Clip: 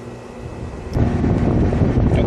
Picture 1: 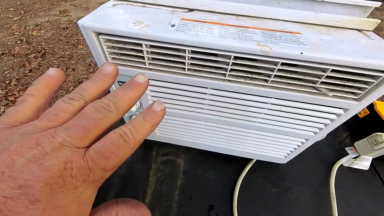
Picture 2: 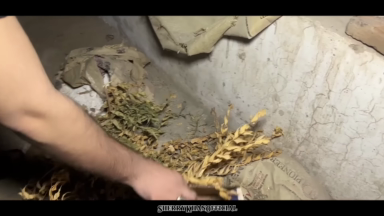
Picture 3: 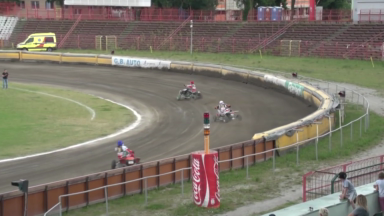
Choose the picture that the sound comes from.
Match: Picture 1